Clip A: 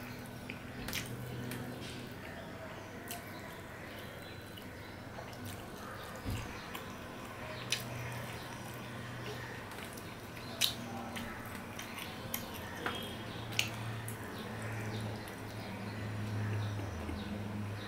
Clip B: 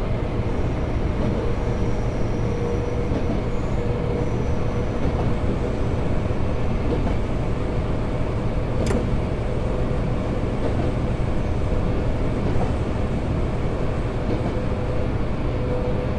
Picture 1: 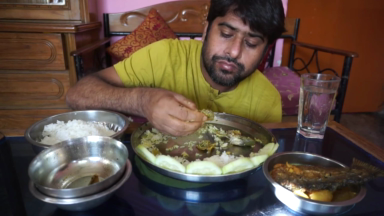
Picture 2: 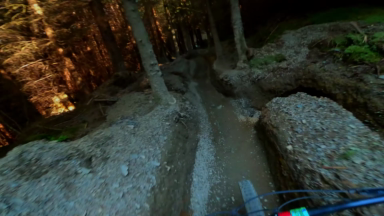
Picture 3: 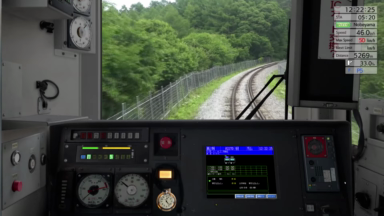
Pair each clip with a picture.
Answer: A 1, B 3